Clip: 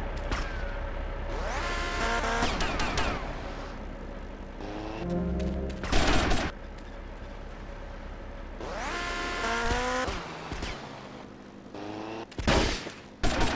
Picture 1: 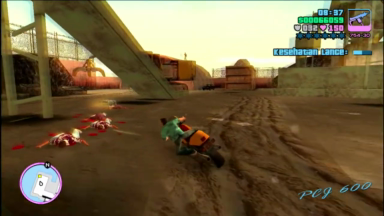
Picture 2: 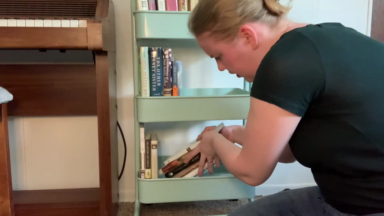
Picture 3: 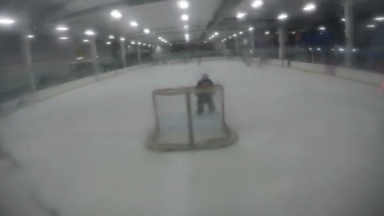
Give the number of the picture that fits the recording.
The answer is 1